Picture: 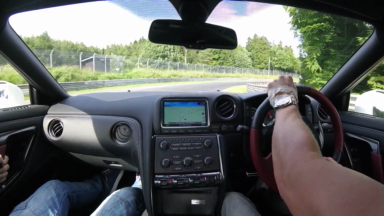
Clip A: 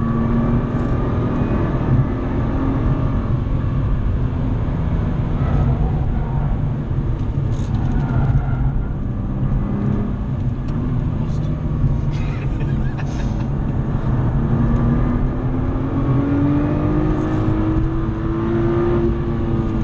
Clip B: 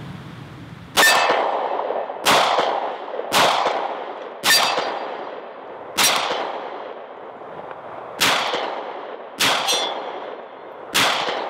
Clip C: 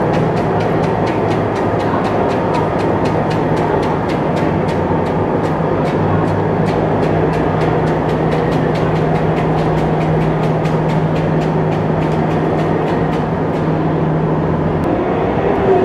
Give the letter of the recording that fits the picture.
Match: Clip A